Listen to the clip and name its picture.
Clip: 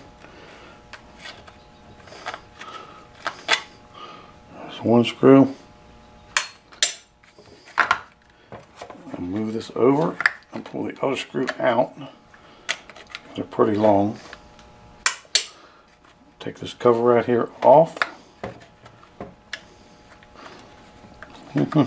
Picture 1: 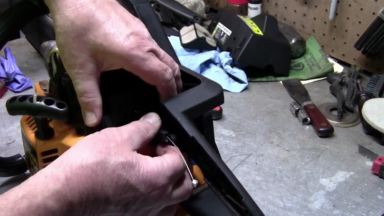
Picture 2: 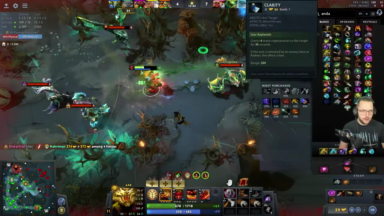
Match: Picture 1